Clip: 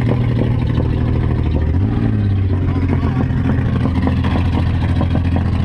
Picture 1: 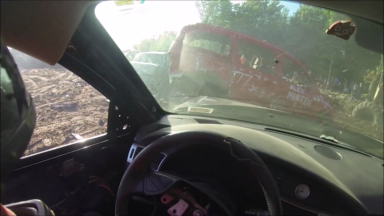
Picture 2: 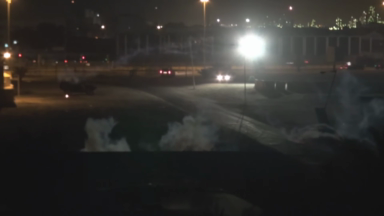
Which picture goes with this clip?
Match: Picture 1